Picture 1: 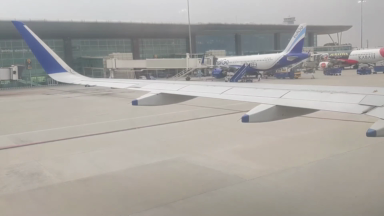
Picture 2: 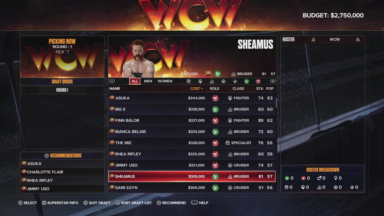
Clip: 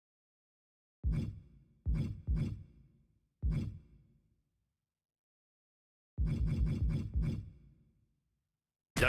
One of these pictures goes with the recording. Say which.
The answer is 2